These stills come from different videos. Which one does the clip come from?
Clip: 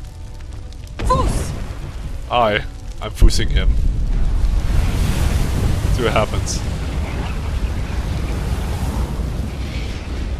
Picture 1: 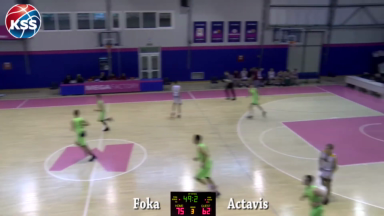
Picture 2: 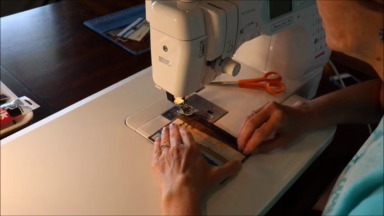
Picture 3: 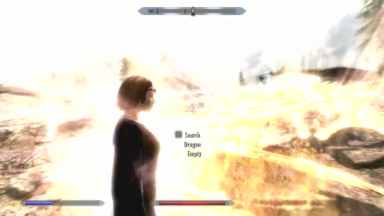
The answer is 3